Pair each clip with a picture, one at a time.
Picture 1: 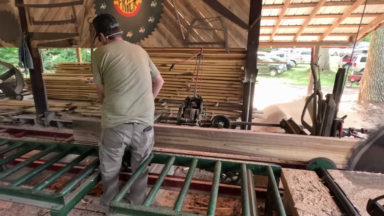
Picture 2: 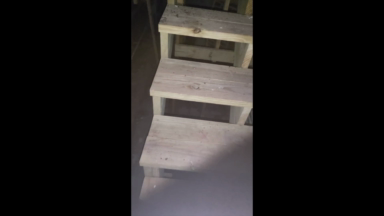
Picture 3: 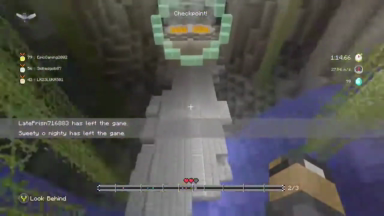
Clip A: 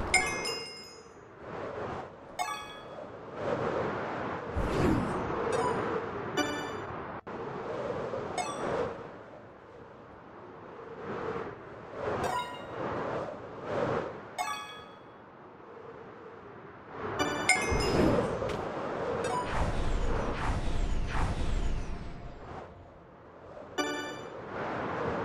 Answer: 3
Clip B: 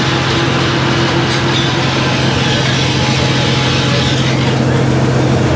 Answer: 1